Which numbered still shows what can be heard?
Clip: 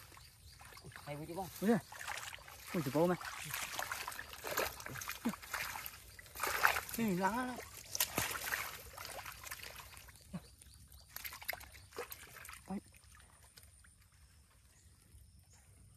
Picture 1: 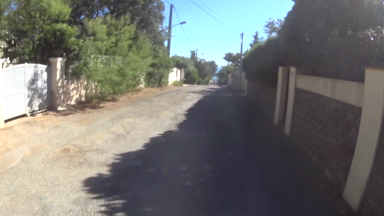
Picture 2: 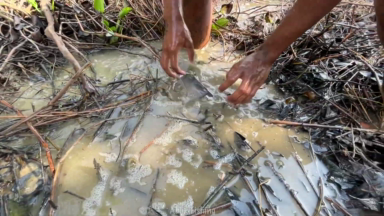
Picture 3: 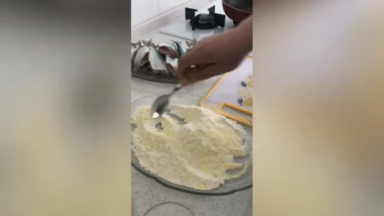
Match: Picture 2